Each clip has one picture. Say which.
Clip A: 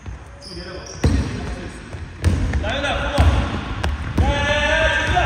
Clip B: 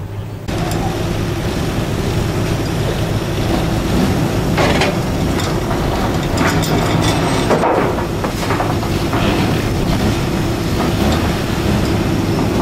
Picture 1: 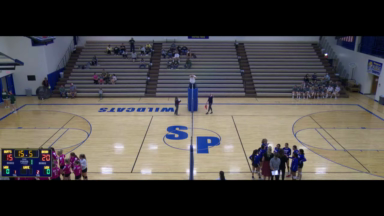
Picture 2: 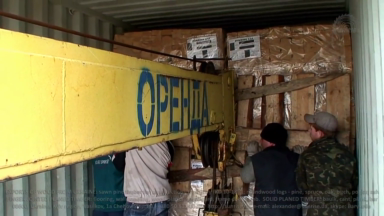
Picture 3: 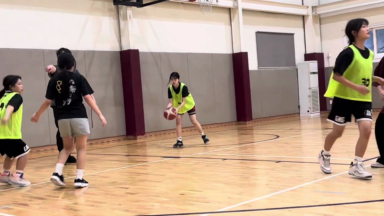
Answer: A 3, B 2